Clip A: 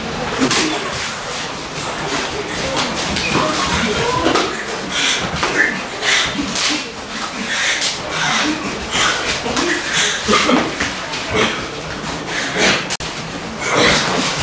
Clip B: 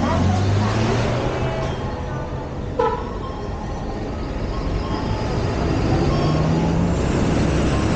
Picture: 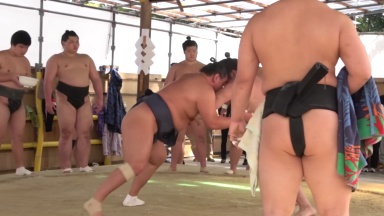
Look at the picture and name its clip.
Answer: A